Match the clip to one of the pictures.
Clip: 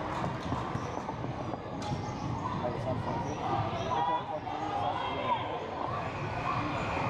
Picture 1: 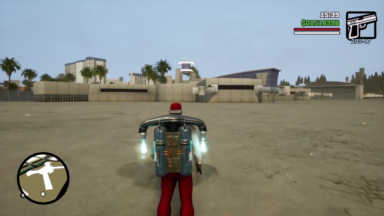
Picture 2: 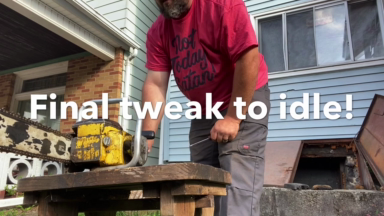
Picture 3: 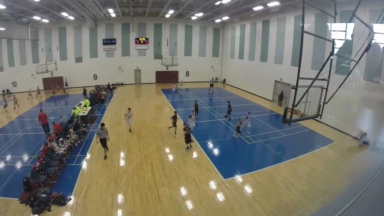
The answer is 3